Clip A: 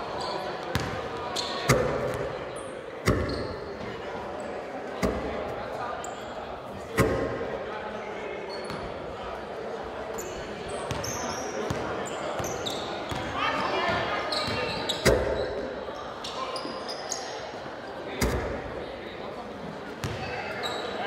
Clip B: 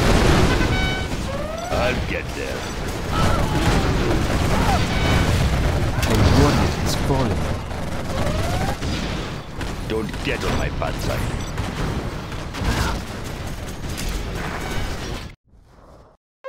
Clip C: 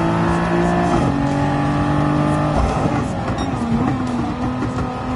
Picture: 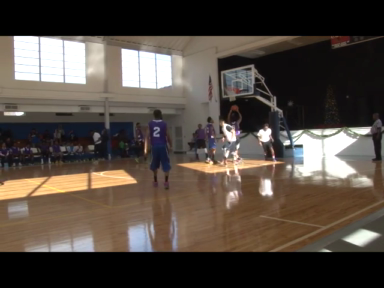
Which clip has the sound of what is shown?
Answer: A